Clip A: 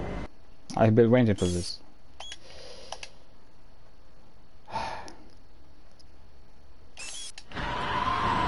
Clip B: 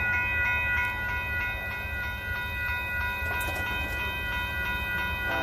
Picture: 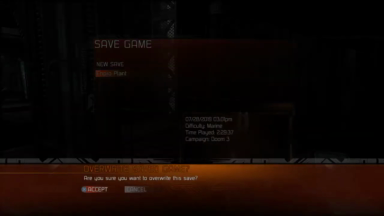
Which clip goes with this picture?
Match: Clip A